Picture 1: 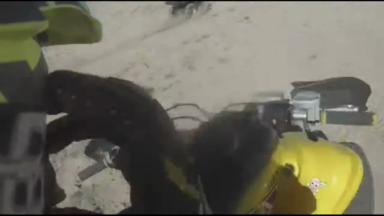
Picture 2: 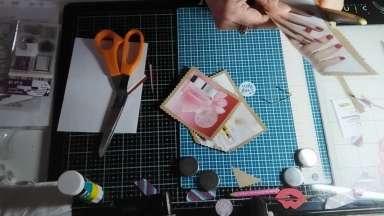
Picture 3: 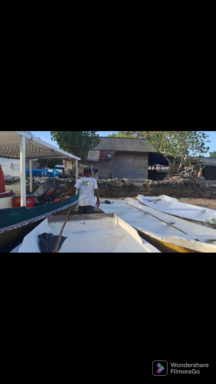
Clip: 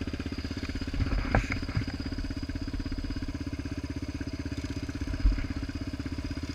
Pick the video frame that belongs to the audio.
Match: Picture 1